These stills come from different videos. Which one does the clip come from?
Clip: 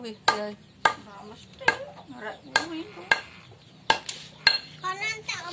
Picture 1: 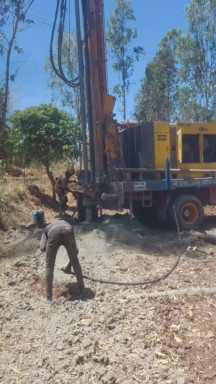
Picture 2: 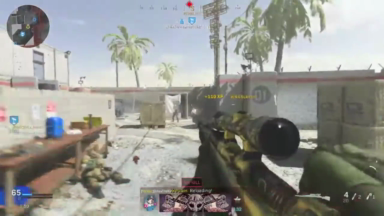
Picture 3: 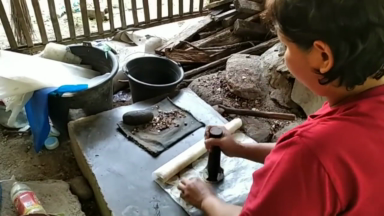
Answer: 3